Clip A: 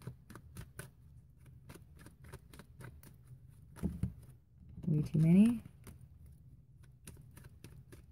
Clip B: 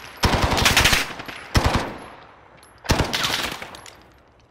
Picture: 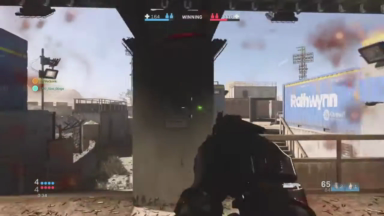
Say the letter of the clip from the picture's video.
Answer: B